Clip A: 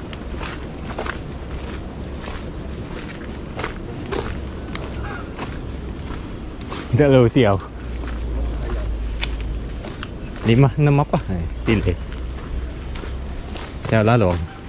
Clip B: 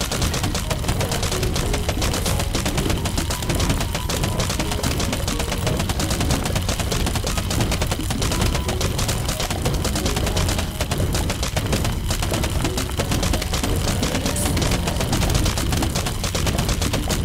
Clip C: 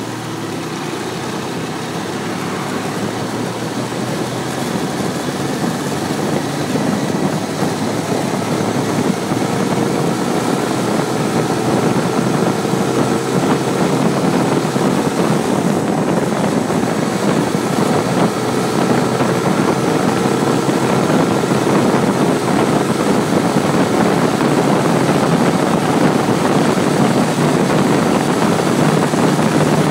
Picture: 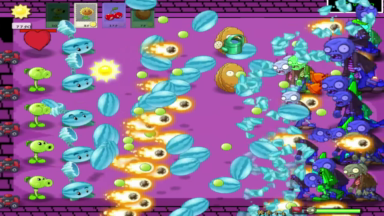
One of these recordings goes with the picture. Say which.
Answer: B